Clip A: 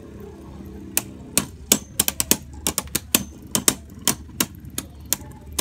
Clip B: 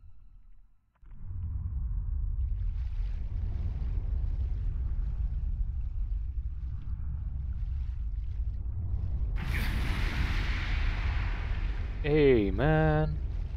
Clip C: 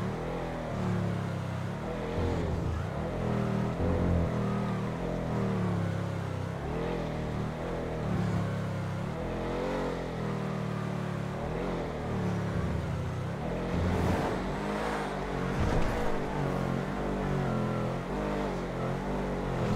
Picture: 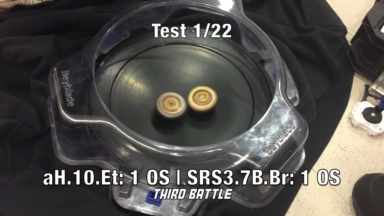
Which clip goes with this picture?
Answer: A